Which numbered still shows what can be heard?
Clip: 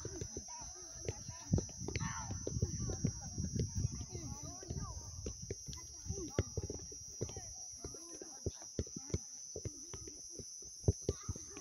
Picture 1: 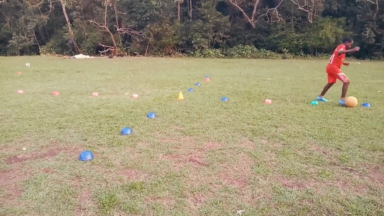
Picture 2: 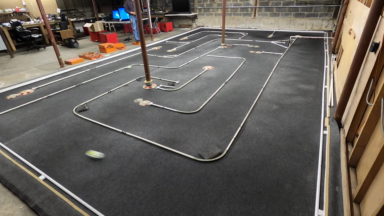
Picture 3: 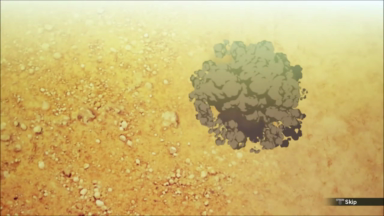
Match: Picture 1